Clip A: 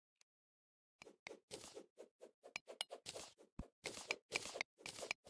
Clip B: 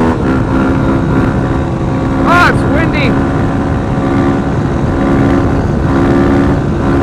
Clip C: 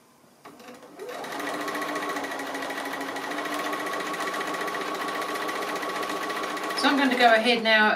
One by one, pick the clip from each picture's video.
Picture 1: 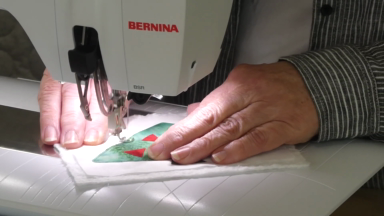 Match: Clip C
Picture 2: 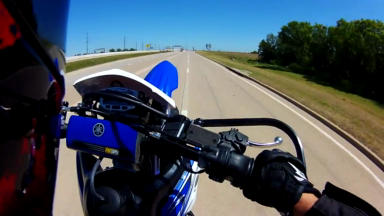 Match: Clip B